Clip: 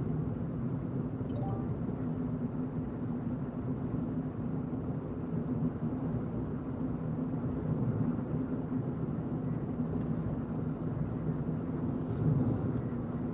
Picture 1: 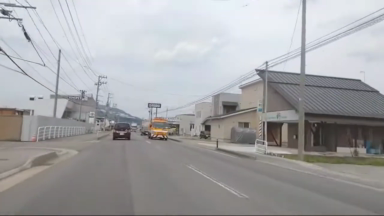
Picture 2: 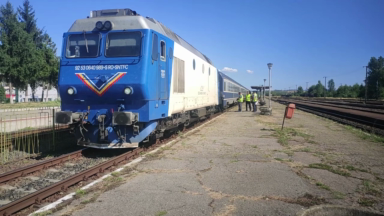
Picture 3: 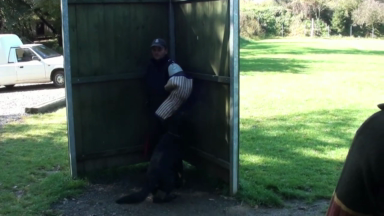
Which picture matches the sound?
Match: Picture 1